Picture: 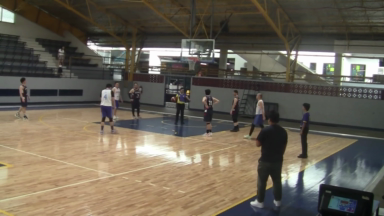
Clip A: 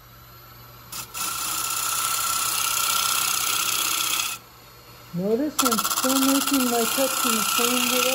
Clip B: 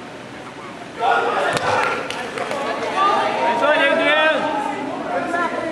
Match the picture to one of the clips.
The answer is B